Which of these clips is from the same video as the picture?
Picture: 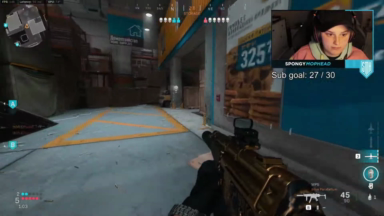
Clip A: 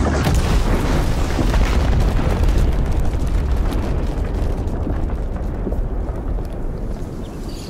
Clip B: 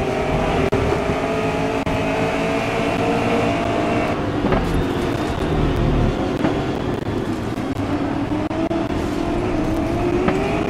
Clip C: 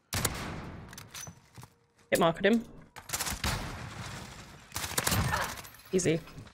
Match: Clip C